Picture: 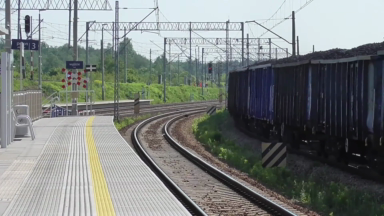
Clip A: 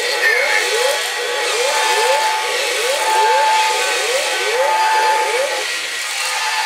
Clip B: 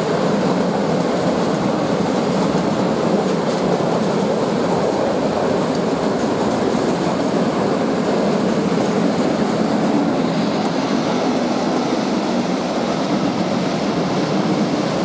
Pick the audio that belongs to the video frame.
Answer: B